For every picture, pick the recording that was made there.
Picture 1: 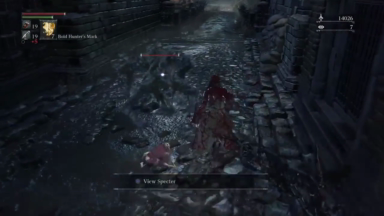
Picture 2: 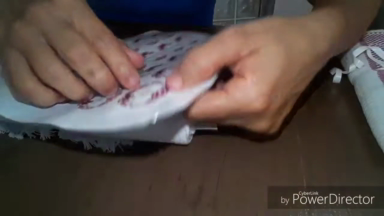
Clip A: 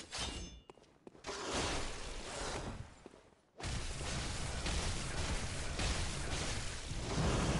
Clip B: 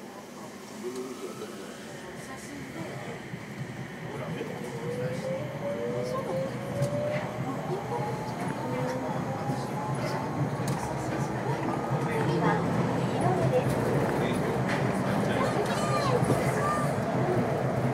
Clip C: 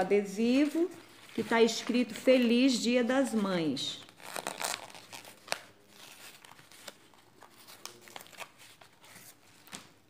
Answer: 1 A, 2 C